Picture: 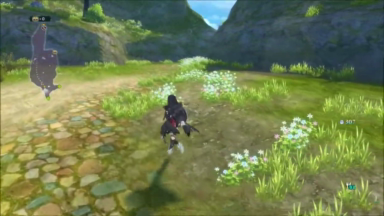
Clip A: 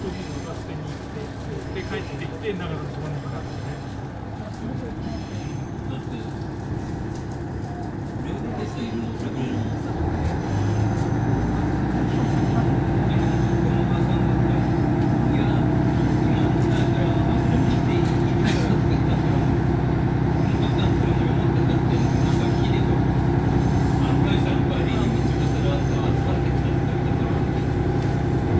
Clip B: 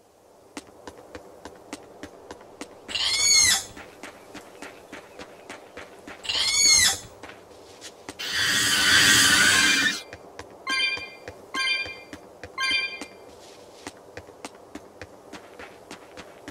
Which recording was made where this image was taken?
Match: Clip B